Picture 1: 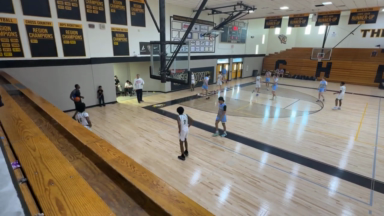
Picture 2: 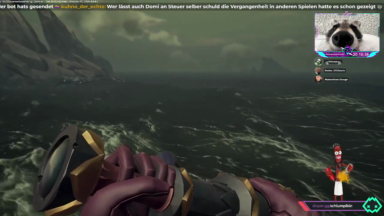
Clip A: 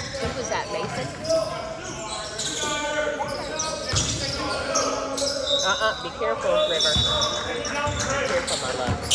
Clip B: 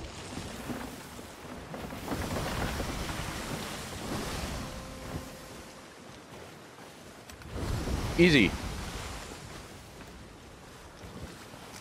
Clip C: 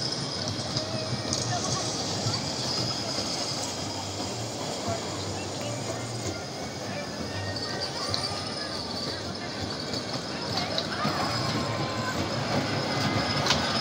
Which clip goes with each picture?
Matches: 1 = A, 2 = B